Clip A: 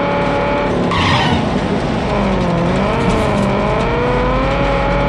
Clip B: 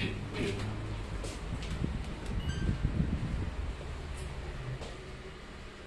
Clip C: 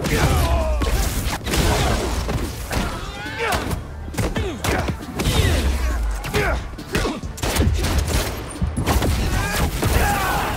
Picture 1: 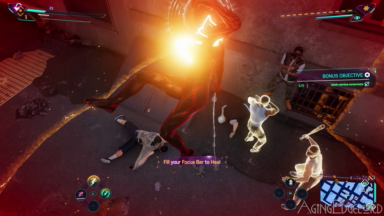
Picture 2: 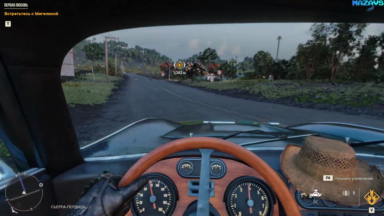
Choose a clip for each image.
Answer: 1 C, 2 A